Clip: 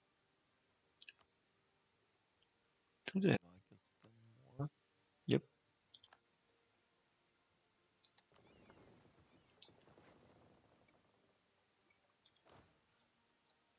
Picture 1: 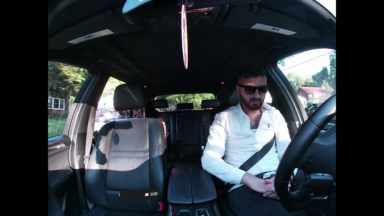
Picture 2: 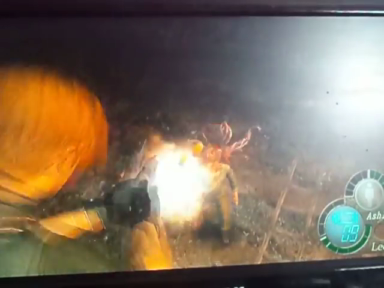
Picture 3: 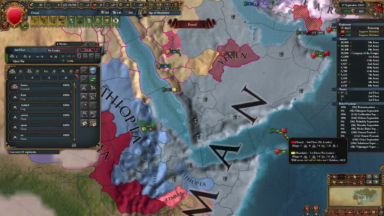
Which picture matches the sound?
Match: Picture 3